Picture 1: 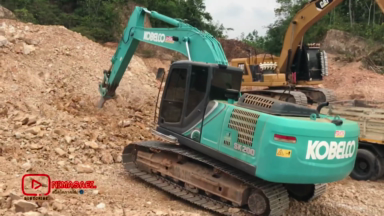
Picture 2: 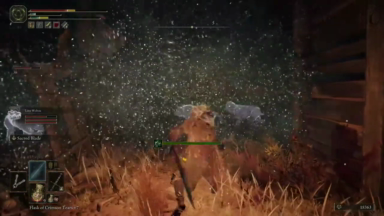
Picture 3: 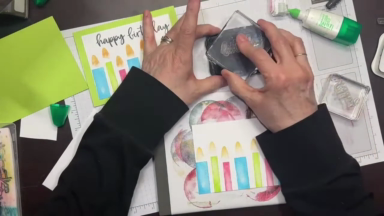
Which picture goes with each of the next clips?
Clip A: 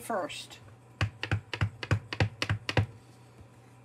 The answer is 3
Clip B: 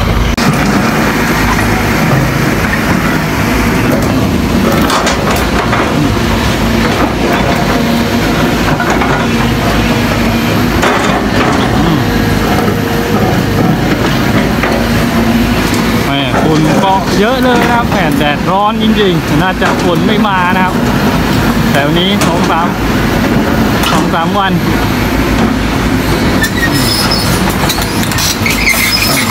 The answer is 1